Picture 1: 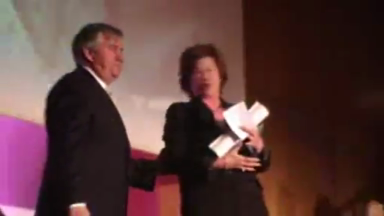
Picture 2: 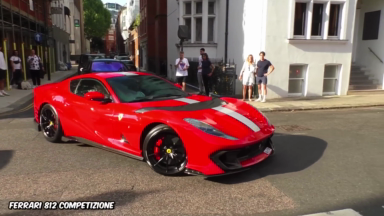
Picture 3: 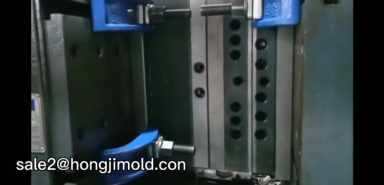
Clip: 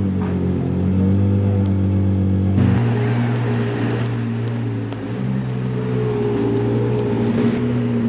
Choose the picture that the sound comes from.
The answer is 2